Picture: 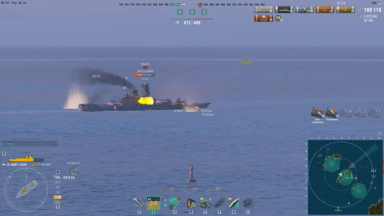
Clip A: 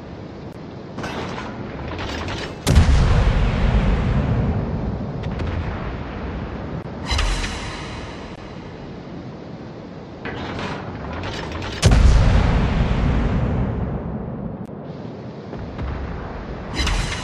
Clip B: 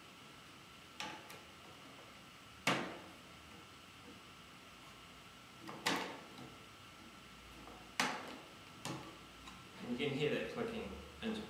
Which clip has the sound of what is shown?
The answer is A